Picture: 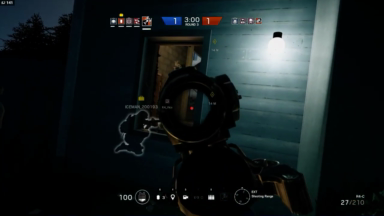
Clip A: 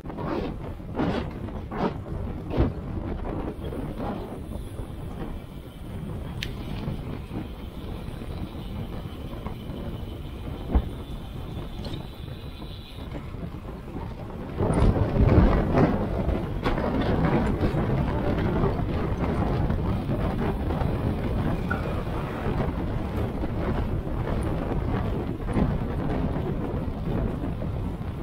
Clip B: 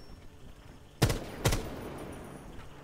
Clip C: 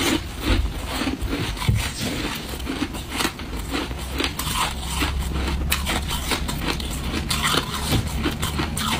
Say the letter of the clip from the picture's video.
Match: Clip B